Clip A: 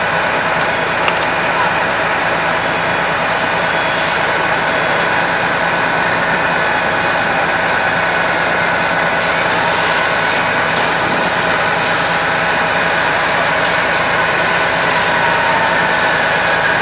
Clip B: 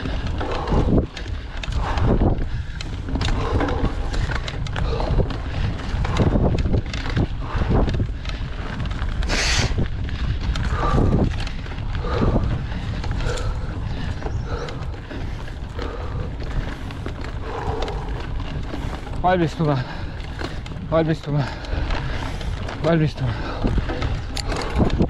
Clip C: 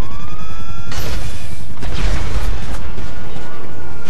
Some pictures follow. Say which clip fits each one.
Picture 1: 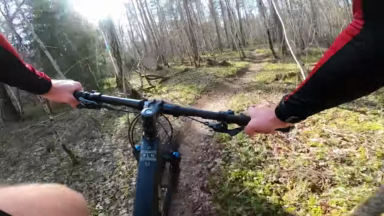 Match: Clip B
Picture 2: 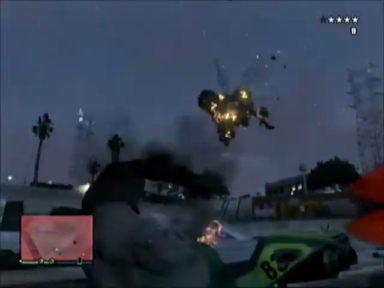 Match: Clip C